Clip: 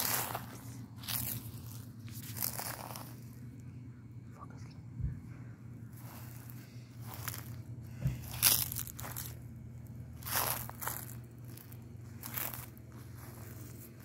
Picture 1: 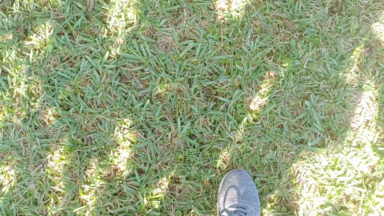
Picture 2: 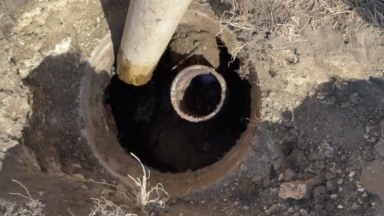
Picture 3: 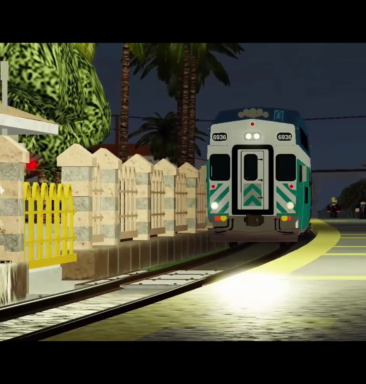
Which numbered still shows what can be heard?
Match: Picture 1